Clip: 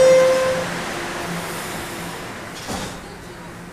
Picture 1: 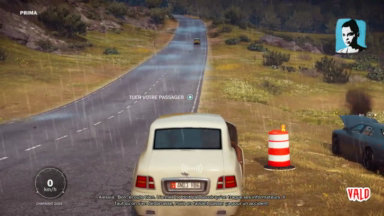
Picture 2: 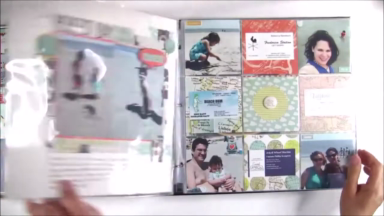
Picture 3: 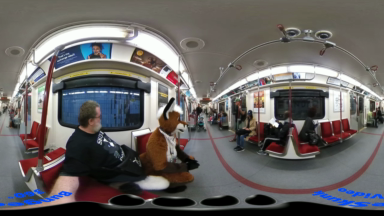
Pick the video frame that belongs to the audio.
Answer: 3